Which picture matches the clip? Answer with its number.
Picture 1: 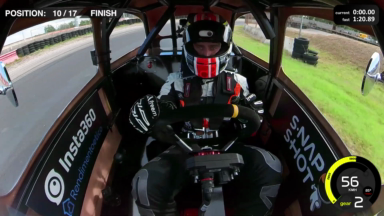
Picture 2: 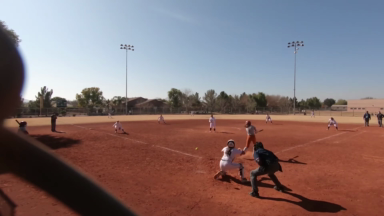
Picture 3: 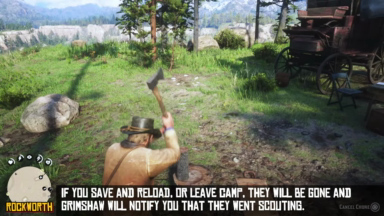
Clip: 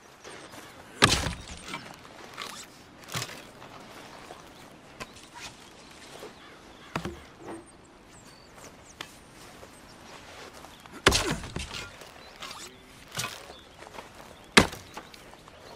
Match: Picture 3